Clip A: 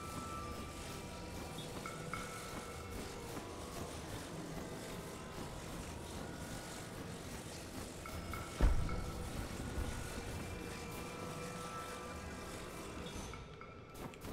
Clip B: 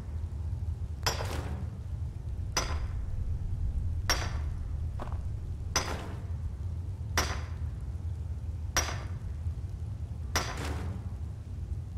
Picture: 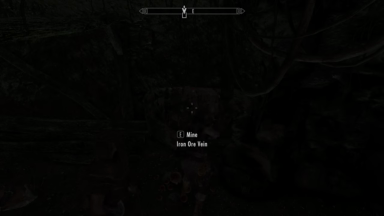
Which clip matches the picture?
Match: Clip B